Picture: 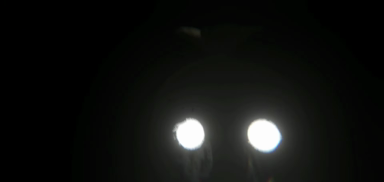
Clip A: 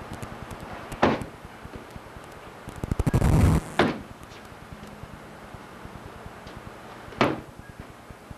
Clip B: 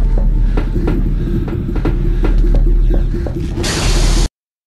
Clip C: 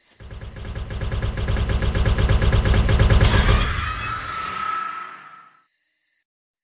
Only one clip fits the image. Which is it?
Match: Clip C